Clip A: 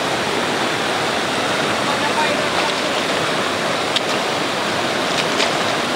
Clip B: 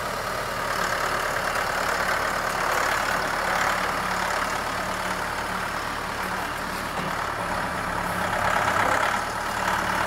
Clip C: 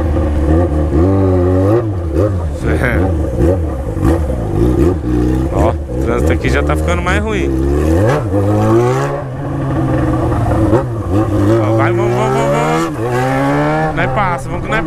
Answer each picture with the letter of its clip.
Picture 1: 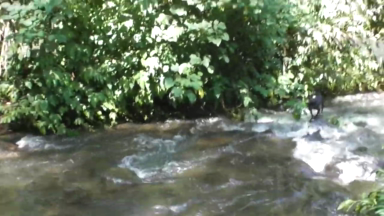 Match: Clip A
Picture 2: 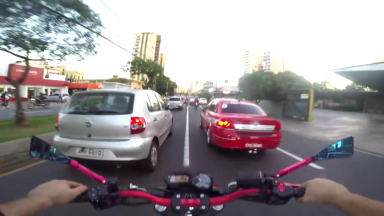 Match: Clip C